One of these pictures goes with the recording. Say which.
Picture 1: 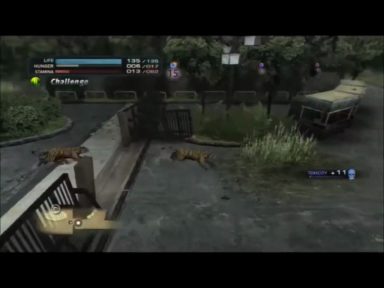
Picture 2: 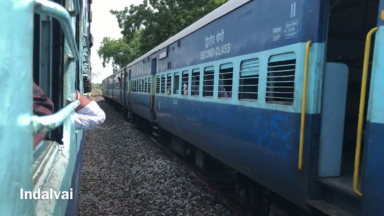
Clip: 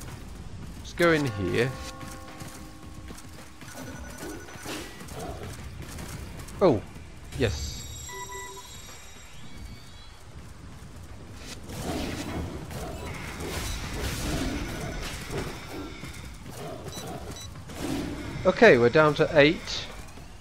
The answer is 1